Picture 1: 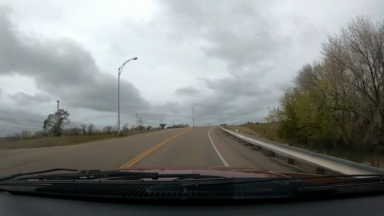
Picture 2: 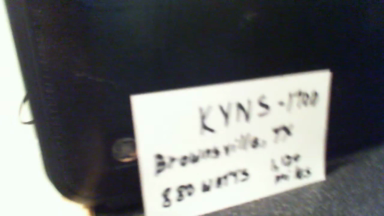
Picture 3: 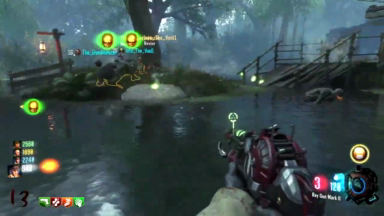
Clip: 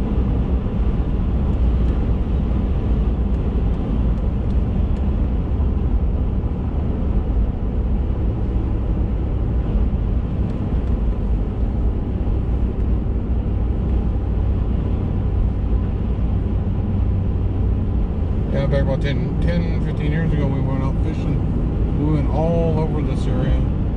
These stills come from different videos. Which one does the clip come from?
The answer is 1